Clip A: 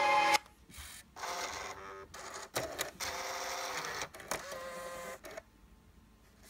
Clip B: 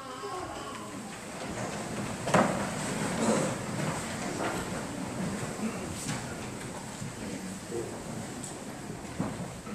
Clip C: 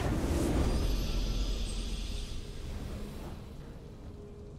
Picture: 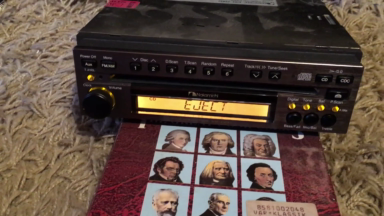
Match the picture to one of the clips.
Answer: A